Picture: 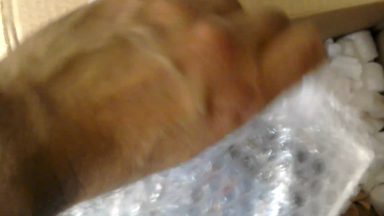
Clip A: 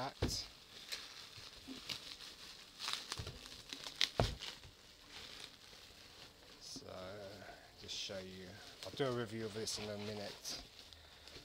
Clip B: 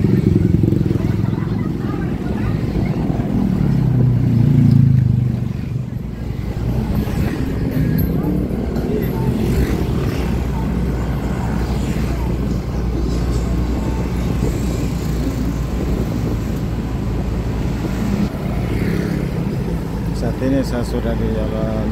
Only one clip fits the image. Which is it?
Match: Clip A